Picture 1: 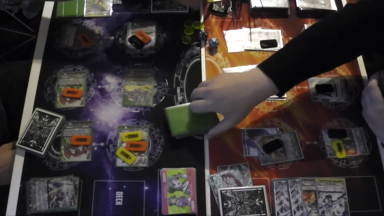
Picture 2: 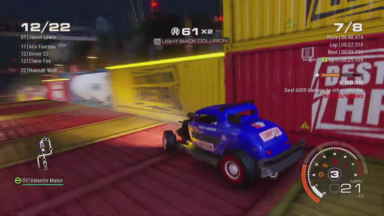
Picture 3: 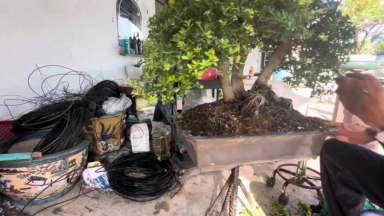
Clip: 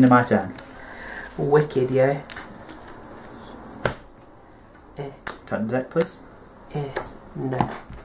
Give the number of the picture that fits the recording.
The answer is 1